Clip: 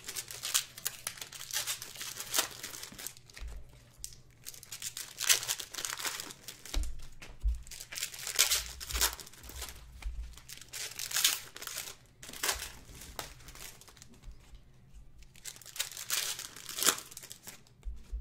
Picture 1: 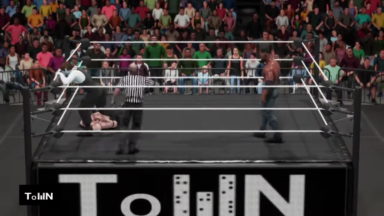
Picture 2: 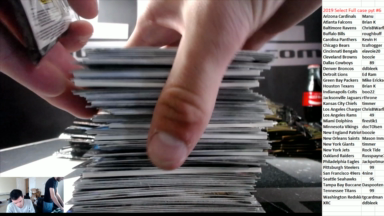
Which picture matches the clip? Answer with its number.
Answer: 2